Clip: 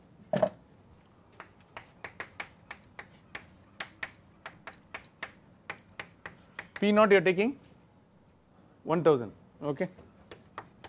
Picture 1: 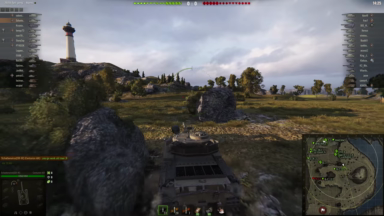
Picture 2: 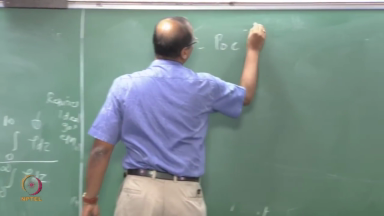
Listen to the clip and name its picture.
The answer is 2